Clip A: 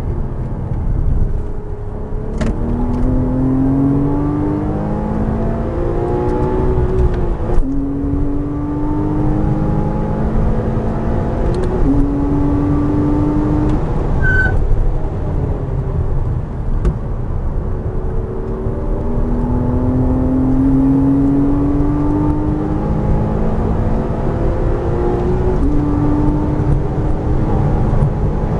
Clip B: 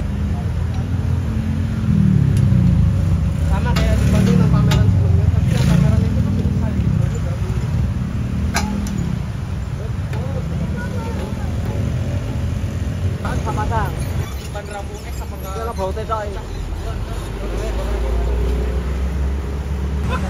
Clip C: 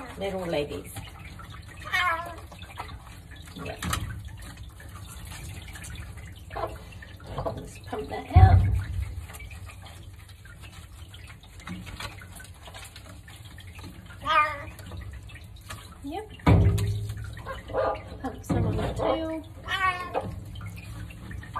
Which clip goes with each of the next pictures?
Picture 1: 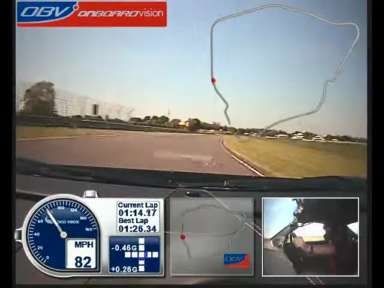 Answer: A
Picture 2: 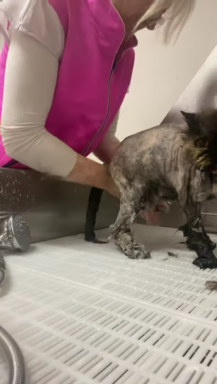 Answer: C